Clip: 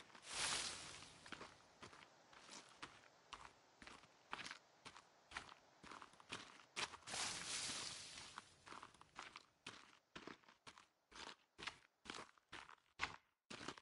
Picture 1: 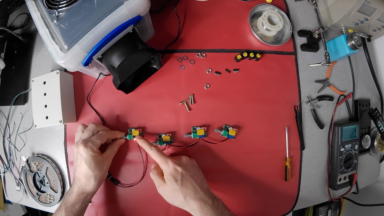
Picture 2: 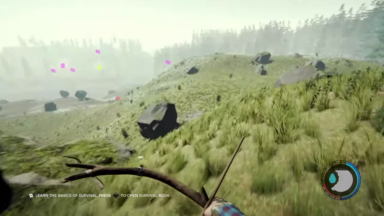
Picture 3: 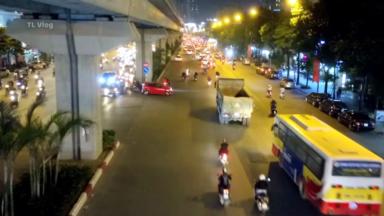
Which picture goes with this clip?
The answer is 2